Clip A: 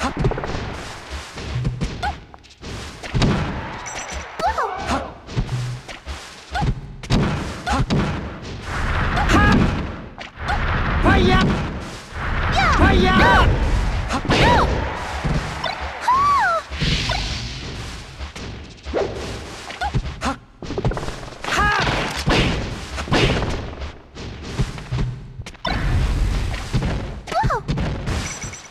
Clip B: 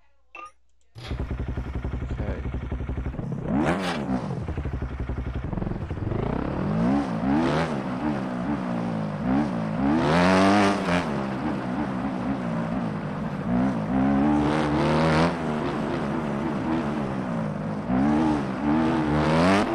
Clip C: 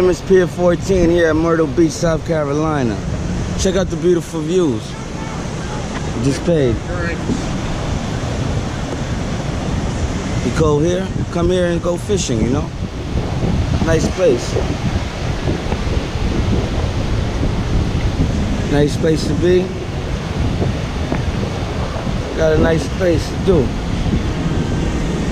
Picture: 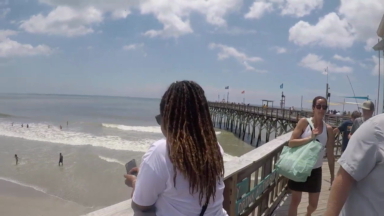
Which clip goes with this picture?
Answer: C